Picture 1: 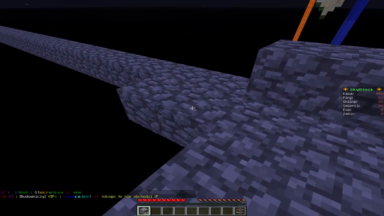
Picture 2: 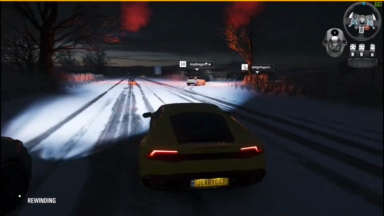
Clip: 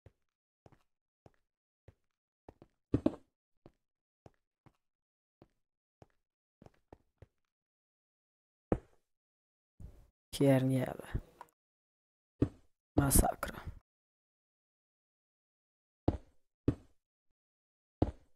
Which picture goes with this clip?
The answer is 1